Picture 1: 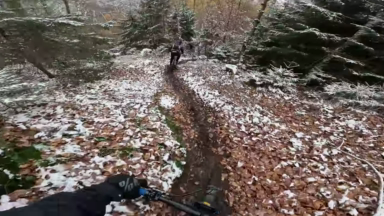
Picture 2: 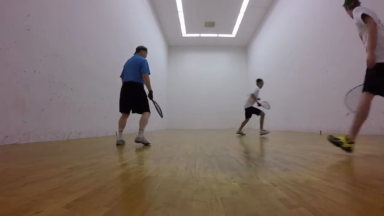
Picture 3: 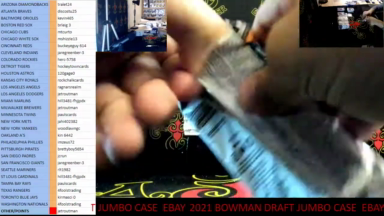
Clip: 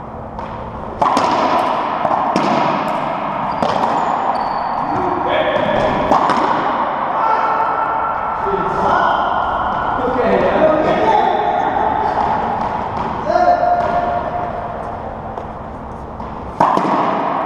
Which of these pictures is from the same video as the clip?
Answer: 2